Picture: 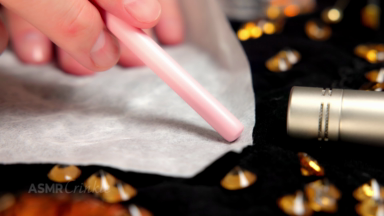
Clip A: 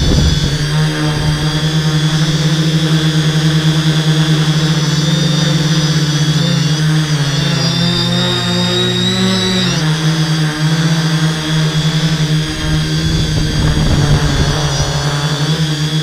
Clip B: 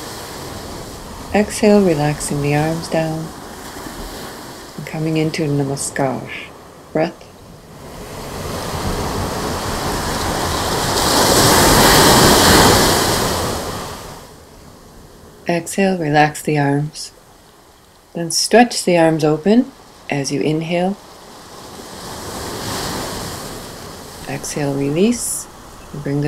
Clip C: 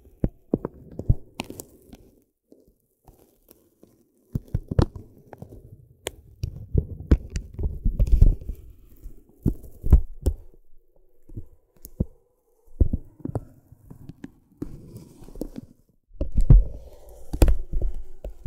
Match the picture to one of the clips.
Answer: C